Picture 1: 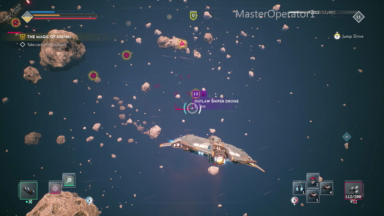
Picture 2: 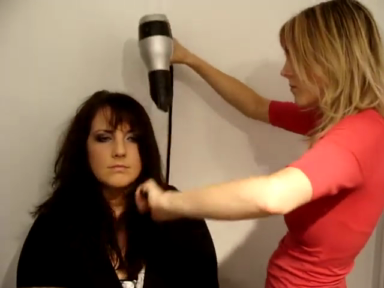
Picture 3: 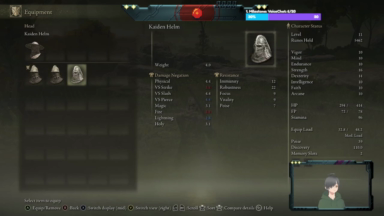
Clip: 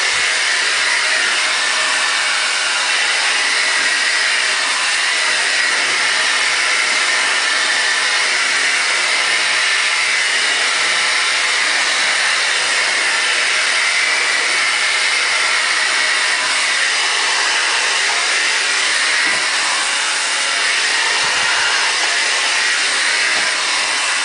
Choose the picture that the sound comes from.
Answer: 2